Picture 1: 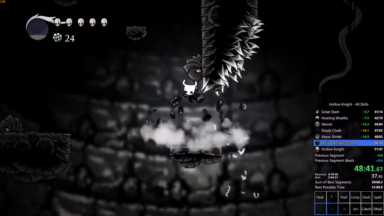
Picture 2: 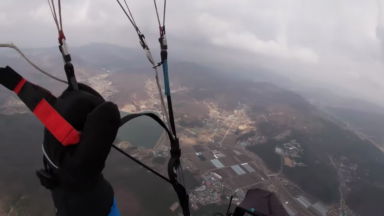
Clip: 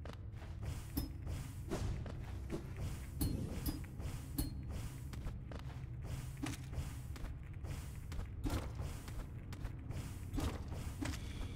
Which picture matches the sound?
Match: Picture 1